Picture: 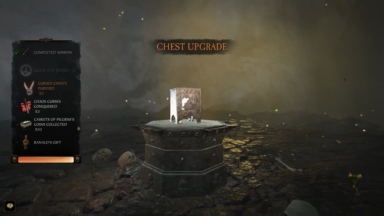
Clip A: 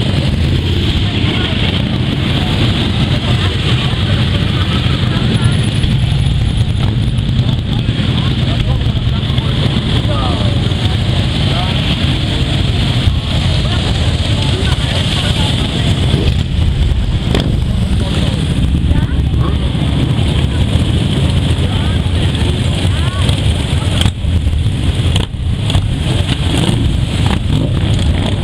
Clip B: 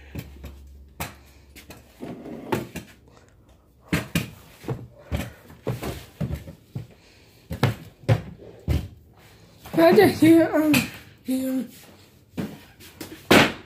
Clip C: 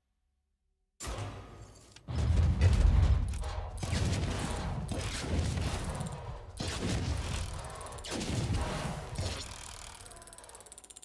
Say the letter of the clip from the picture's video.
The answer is C